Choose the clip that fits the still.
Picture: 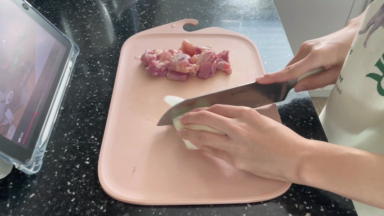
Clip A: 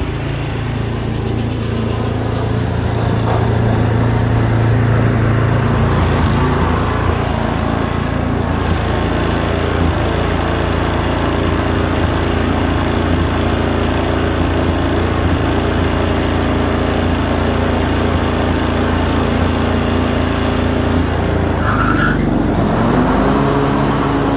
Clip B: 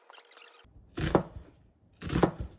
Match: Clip B